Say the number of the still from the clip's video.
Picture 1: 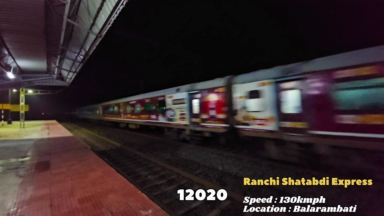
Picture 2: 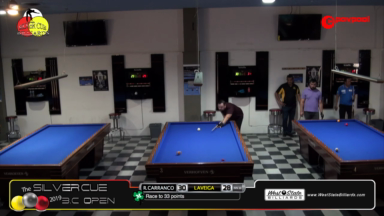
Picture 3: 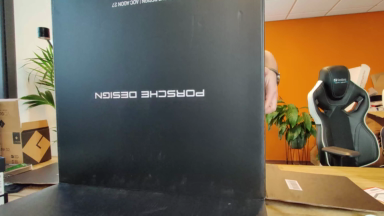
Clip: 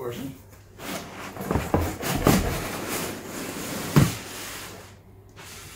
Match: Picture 3